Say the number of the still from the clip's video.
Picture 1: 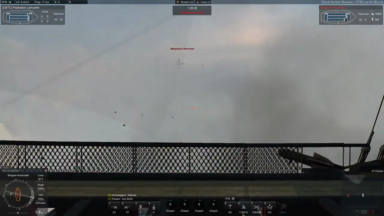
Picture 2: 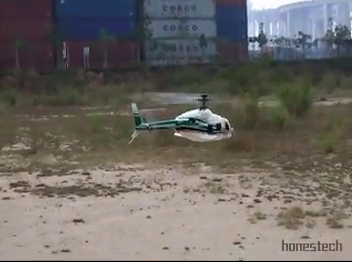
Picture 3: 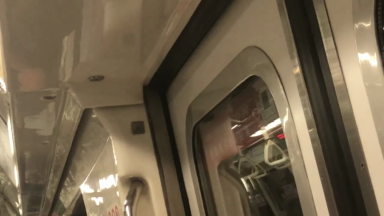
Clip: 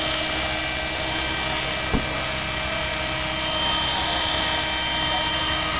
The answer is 2